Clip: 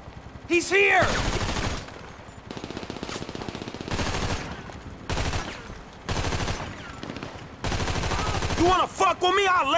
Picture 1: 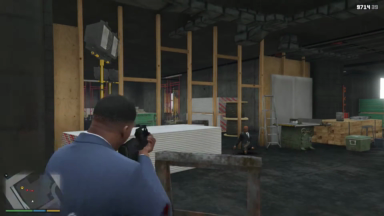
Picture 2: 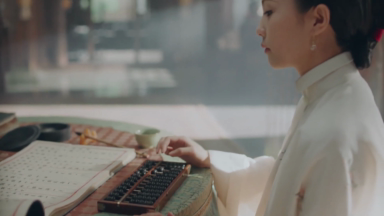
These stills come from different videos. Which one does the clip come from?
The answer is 1